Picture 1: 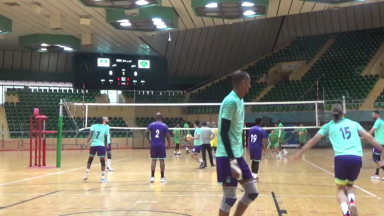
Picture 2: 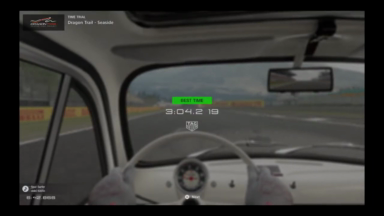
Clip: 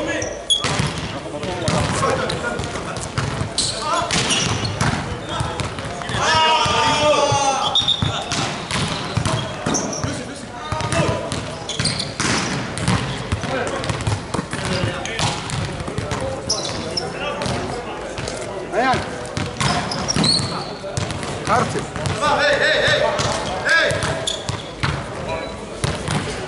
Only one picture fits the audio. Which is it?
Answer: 1